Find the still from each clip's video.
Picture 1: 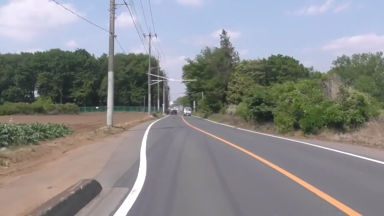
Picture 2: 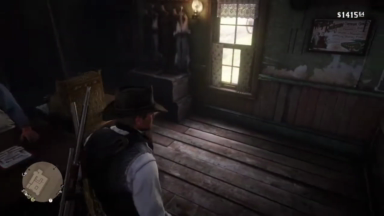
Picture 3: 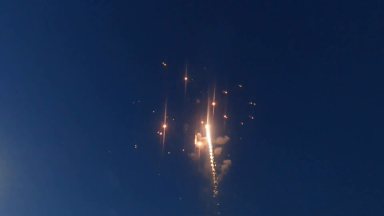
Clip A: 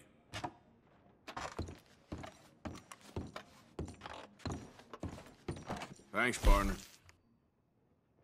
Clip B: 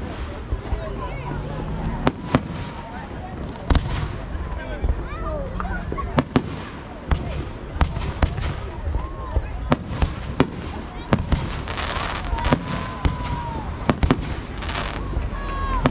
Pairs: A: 2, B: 3